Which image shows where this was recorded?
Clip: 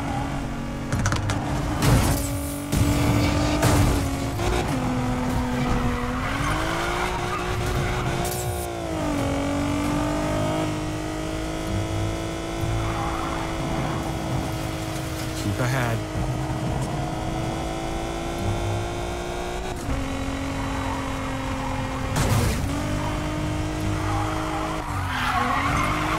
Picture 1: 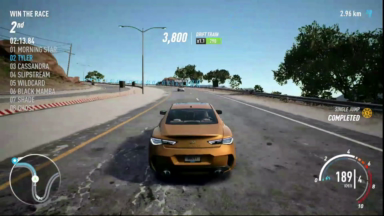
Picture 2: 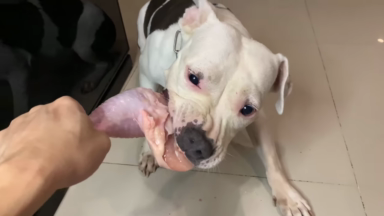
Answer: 1